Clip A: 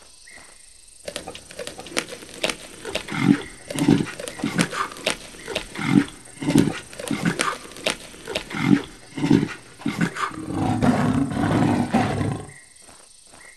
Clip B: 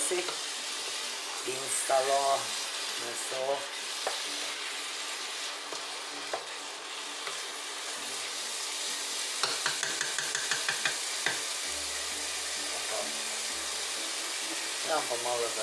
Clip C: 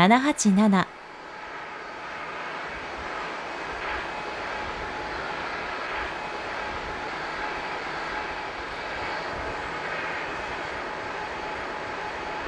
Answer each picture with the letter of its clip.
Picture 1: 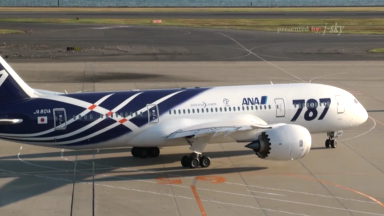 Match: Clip C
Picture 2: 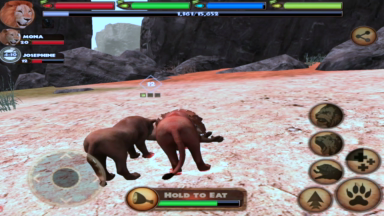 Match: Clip A